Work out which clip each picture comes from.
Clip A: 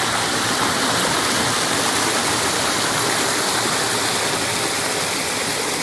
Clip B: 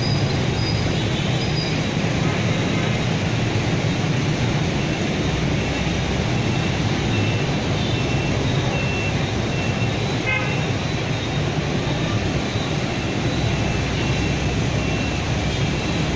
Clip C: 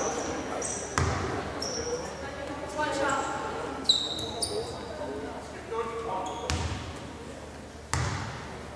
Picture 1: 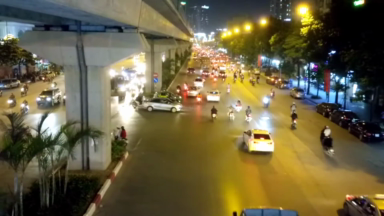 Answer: B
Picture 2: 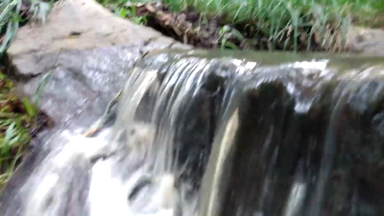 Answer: A